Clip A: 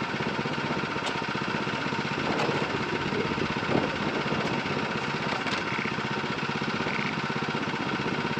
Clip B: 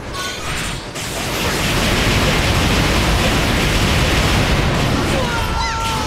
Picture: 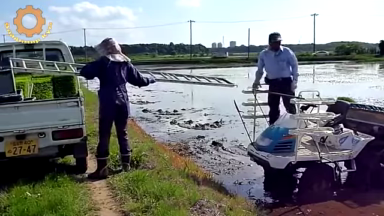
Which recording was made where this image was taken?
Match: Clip A